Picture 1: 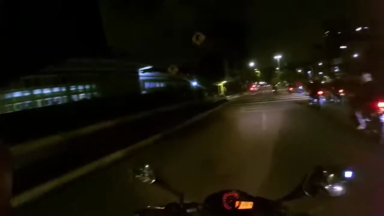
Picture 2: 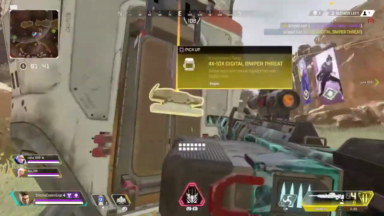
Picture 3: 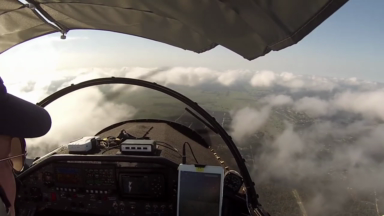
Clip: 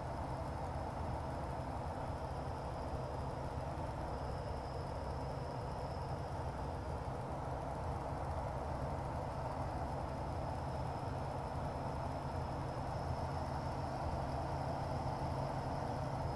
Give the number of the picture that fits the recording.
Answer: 3